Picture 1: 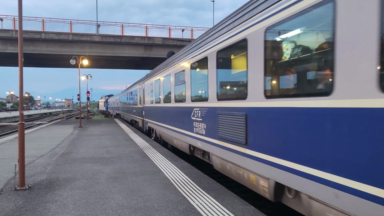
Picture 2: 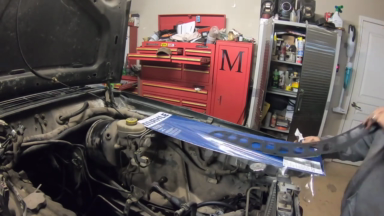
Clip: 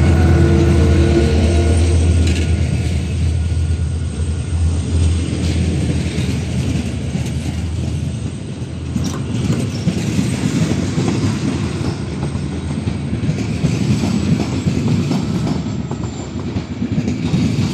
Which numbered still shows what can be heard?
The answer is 1